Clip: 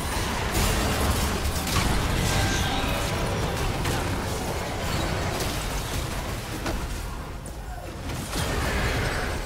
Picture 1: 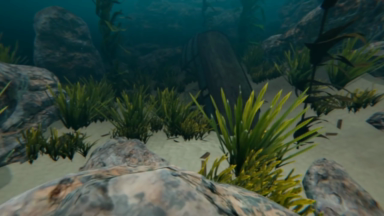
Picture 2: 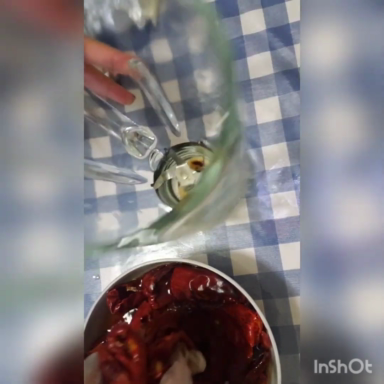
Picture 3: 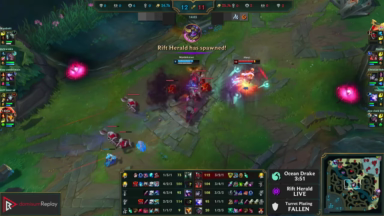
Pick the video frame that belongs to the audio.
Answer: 3